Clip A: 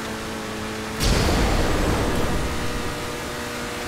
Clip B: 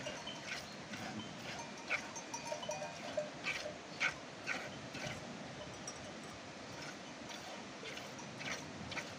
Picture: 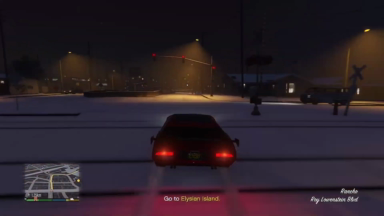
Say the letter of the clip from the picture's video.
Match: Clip A